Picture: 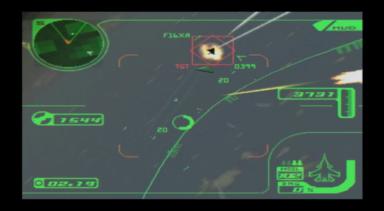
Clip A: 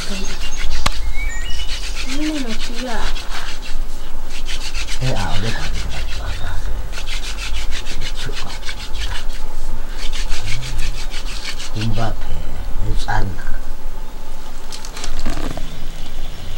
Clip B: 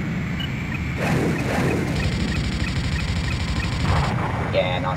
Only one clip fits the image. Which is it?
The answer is B